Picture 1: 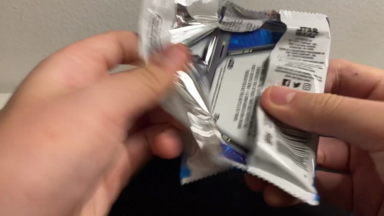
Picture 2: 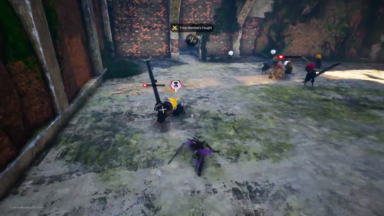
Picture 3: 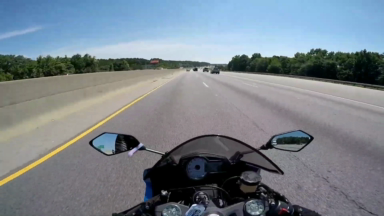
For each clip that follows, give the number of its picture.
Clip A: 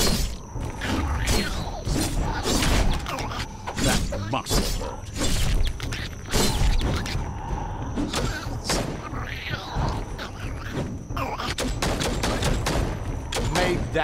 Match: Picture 2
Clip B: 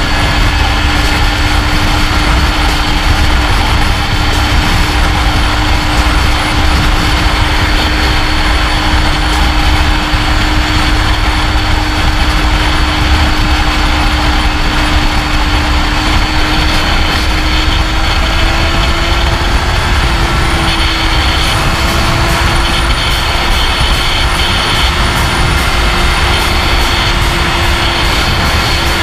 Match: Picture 3